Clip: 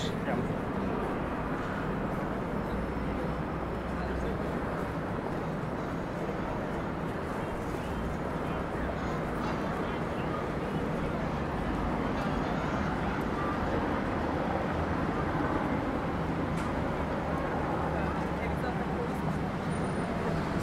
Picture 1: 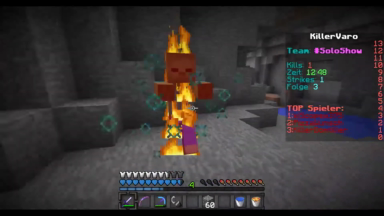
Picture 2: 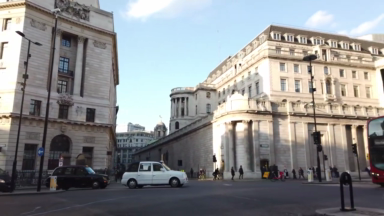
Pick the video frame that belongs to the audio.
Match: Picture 2